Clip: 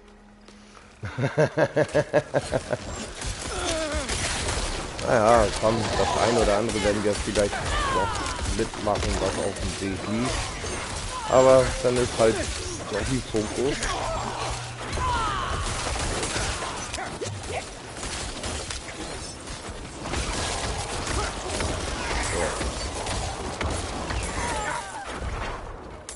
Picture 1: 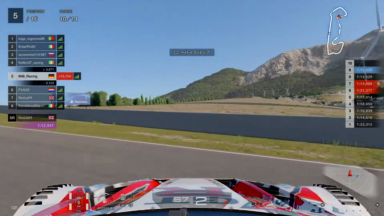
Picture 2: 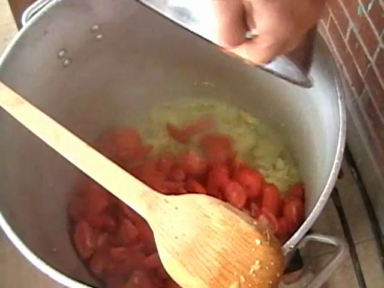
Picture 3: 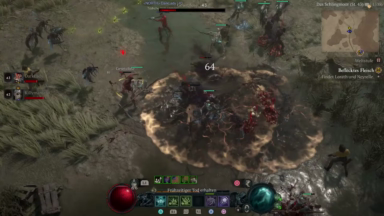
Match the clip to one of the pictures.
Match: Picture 3